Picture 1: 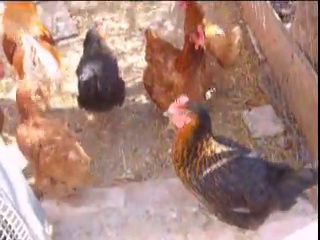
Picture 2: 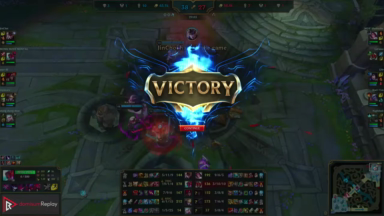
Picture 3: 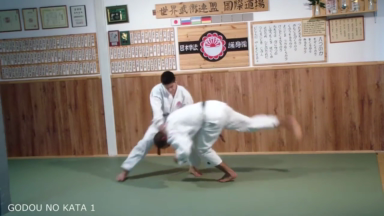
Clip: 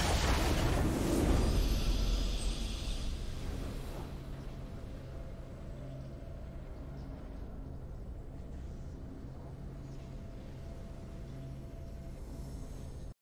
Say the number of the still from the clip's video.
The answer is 2